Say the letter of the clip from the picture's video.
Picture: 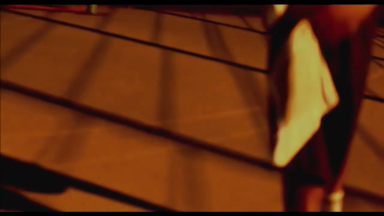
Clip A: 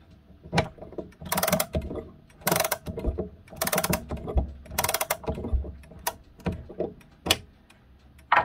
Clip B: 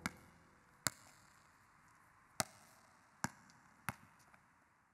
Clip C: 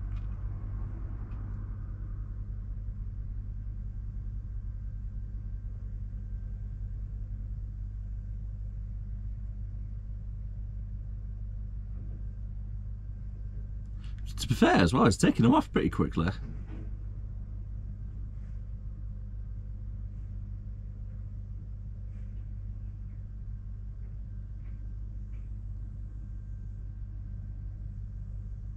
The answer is B